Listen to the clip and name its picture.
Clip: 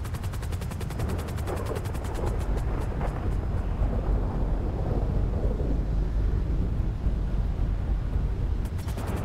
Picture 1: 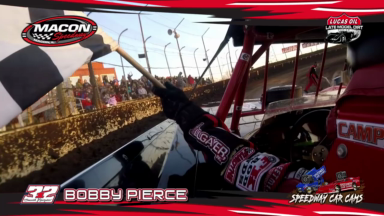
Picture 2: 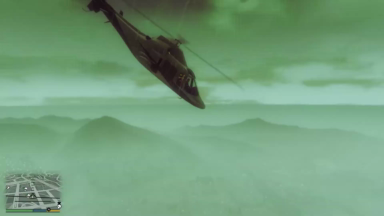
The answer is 2